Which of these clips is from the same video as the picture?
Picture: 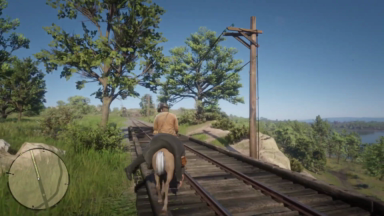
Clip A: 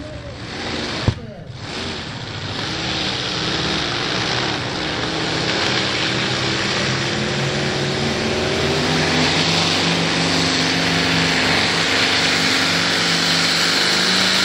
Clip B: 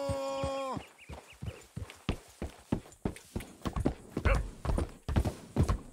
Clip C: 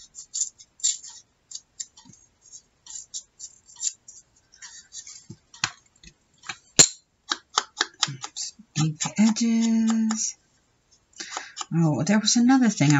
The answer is B